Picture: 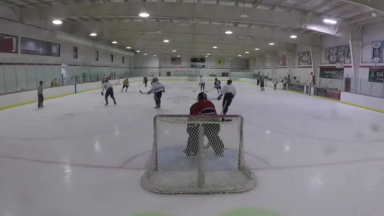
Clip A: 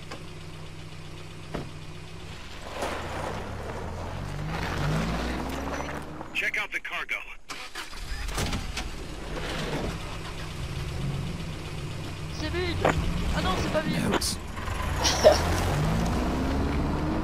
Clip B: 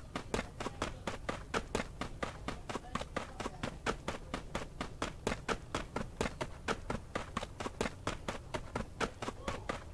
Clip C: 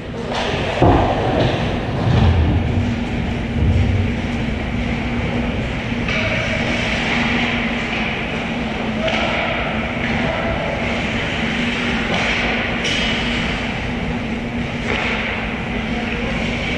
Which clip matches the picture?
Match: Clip C